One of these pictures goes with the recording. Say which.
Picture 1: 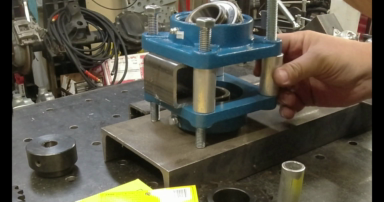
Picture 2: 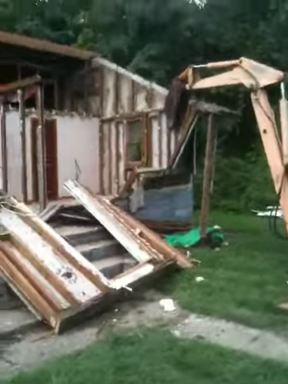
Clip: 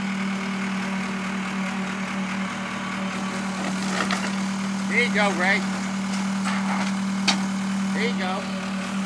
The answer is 2